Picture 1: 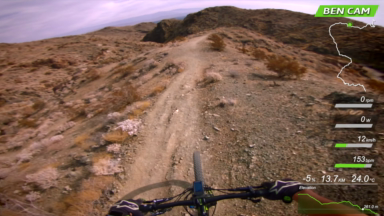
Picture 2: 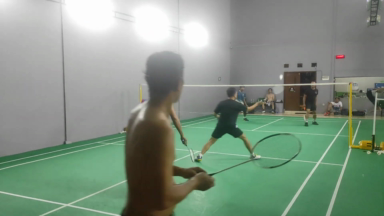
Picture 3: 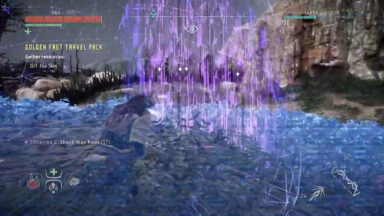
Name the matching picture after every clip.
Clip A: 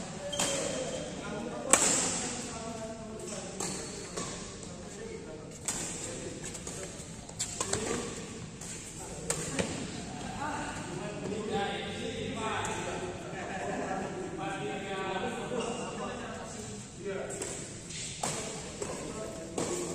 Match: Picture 2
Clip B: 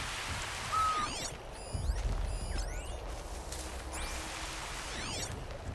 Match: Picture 3